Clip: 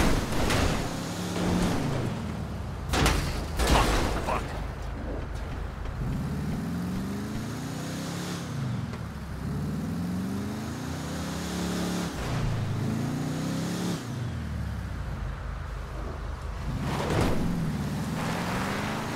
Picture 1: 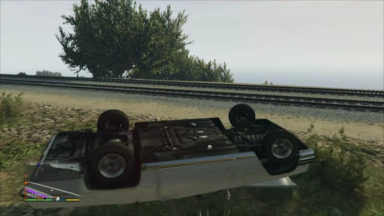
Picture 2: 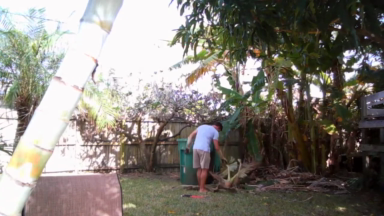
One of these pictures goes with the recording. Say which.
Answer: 1